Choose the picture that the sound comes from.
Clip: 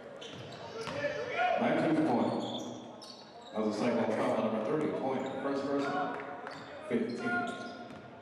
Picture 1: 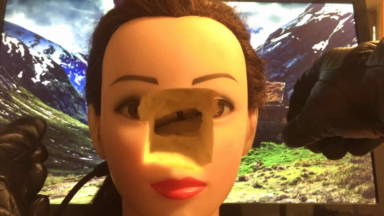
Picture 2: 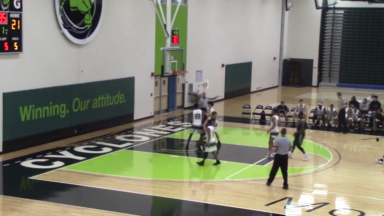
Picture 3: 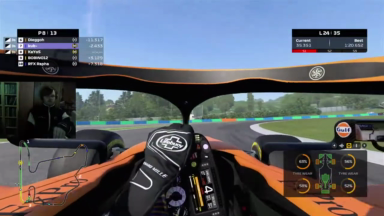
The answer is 2